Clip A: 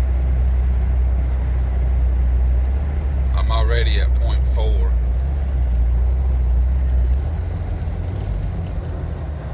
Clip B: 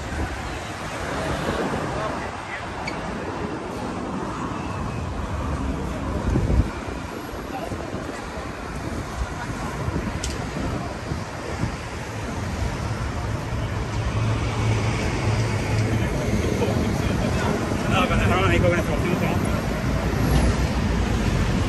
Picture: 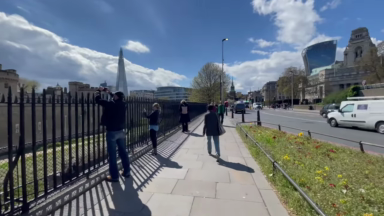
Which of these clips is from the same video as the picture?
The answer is B